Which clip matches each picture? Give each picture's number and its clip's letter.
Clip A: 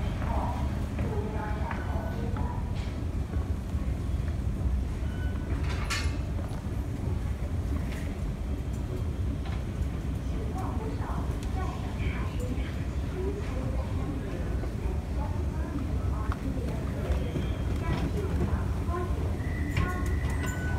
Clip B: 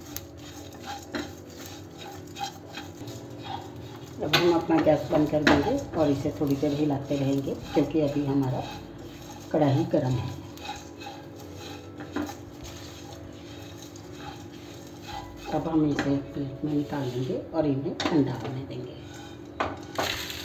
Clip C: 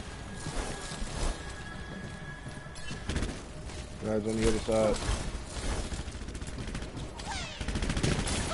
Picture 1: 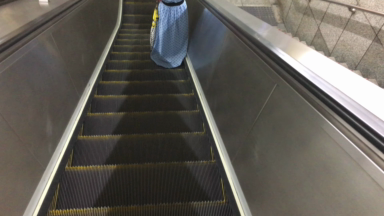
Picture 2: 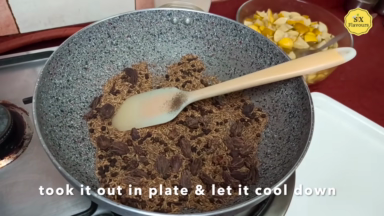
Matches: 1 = A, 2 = B